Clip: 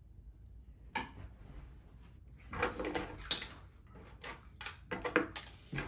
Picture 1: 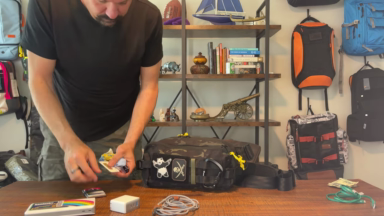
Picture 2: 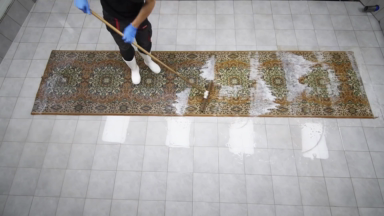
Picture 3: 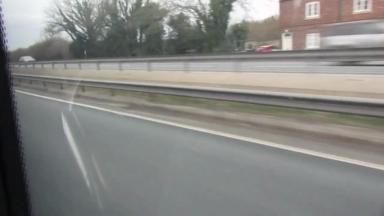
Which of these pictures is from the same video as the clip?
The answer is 1